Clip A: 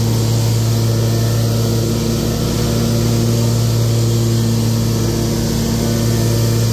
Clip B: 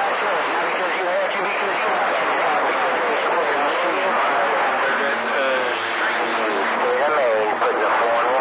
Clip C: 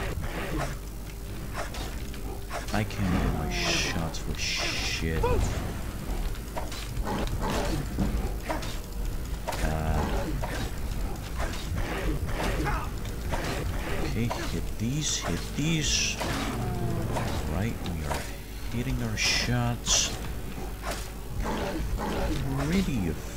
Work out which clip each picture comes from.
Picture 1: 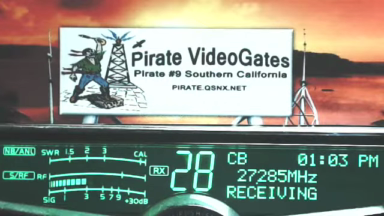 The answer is B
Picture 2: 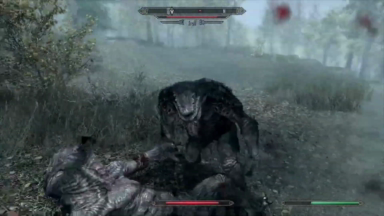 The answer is C